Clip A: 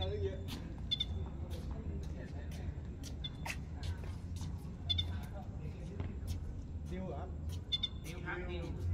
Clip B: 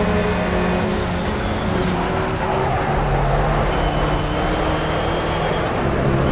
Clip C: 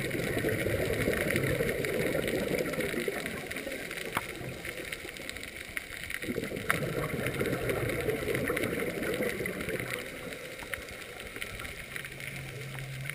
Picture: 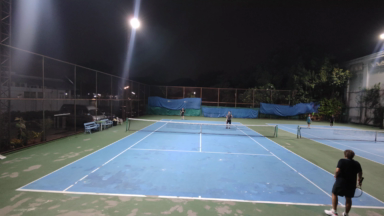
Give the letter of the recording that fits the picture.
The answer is A